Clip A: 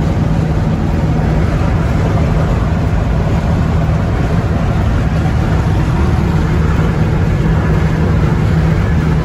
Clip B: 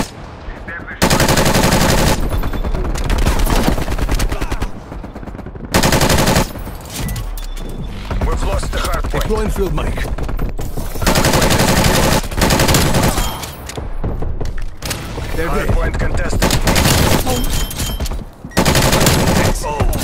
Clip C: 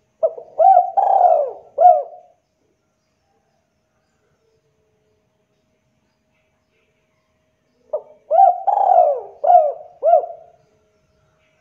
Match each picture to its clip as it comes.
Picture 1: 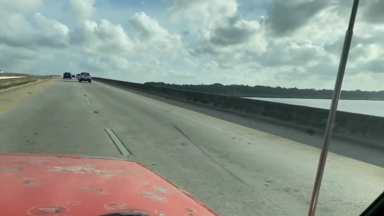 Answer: A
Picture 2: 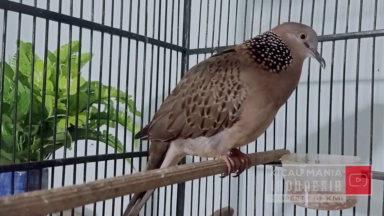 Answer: C